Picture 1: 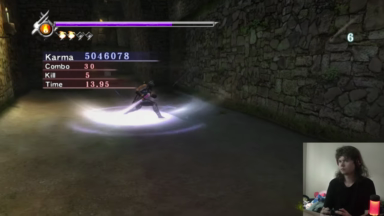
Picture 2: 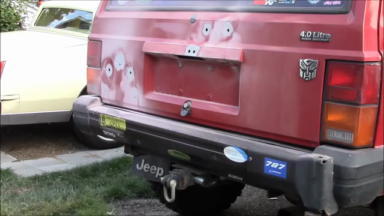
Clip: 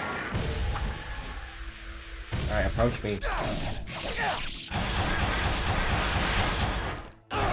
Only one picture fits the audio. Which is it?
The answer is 1